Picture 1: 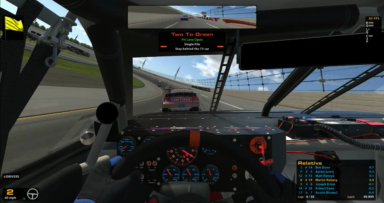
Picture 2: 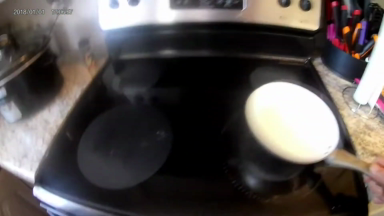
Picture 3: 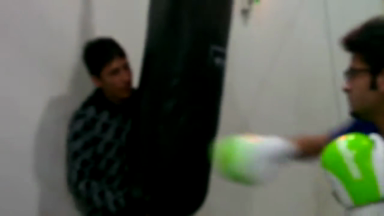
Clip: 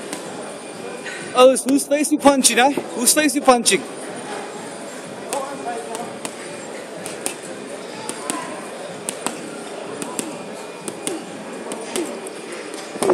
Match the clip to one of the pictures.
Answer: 3